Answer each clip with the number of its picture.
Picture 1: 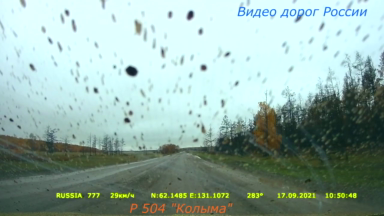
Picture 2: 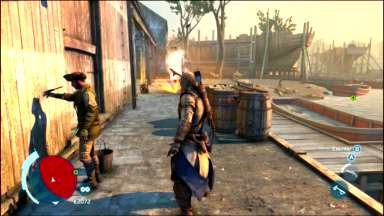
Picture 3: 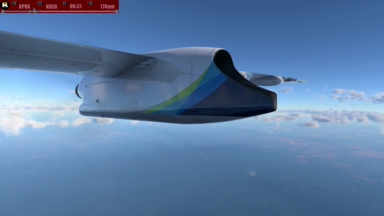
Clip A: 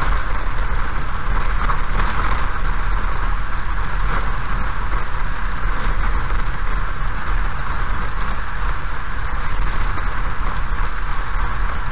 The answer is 1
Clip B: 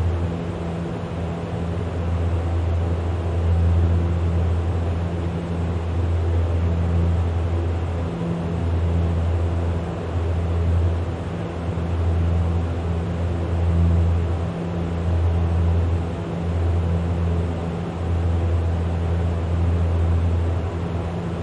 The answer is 3